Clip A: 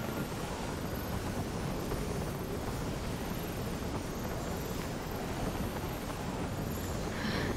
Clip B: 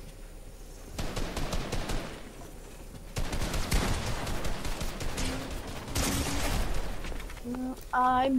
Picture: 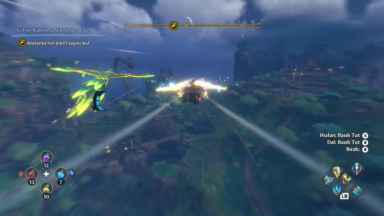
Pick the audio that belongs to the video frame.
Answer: A